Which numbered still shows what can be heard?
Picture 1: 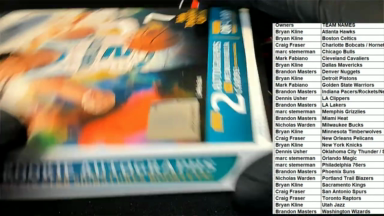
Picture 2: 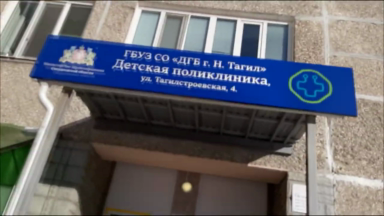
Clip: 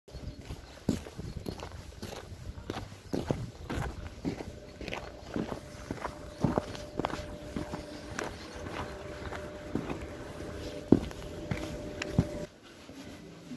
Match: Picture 2